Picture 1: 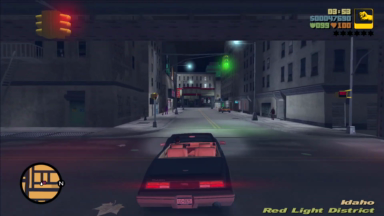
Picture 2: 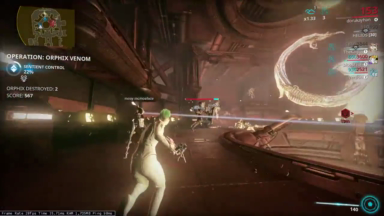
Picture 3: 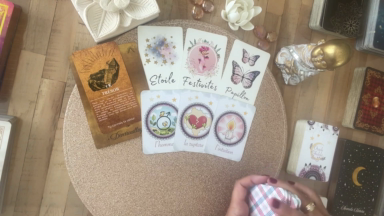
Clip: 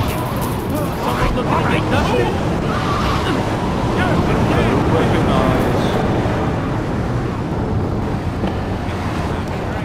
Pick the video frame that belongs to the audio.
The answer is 1